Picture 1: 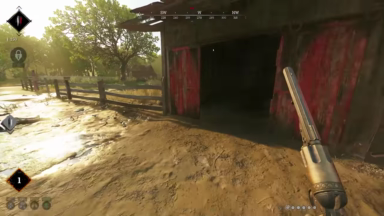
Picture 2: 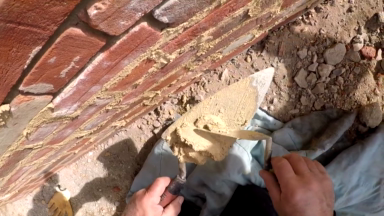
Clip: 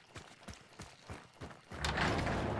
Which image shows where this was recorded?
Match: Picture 1